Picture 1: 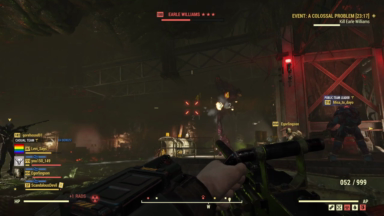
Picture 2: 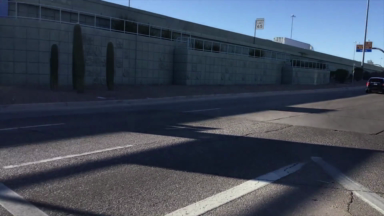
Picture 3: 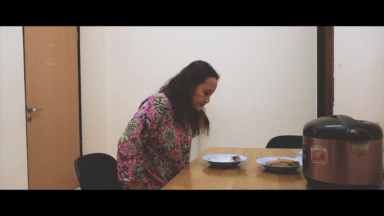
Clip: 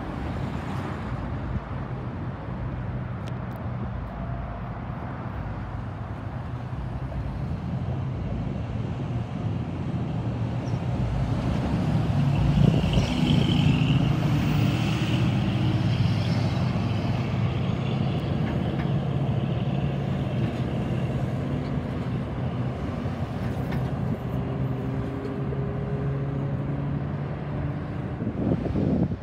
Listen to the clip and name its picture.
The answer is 2